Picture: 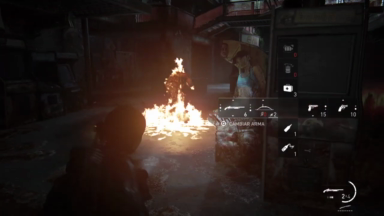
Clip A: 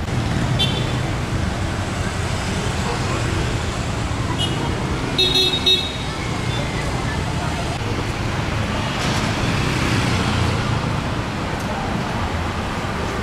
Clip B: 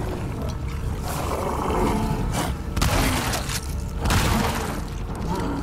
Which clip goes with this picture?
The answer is B